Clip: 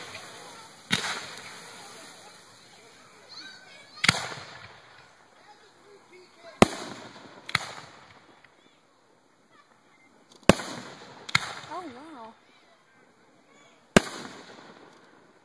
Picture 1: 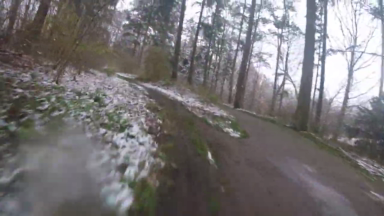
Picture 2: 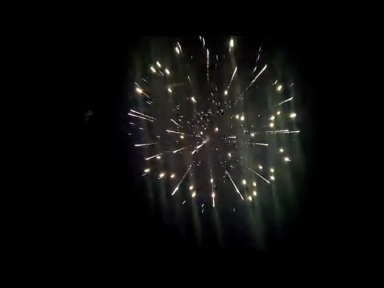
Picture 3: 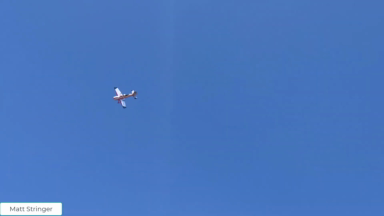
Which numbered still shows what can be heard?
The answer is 2